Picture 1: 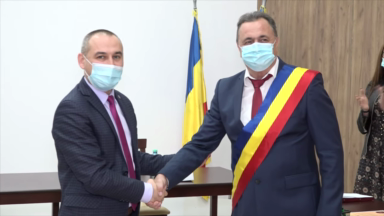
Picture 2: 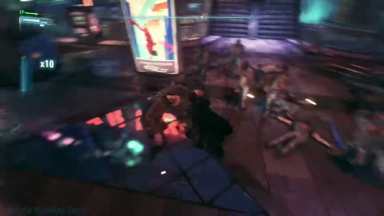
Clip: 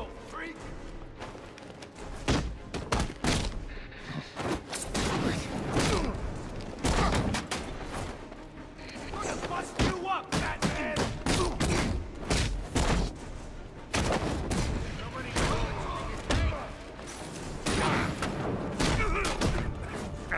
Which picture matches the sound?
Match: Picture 2